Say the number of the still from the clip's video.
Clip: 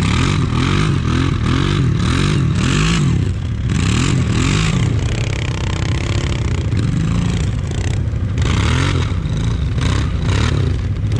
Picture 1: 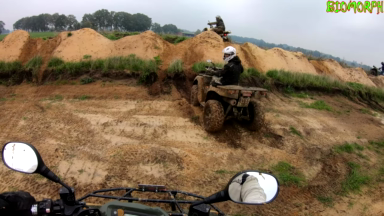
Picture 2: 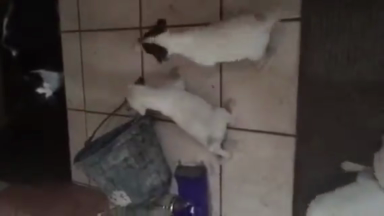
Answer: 1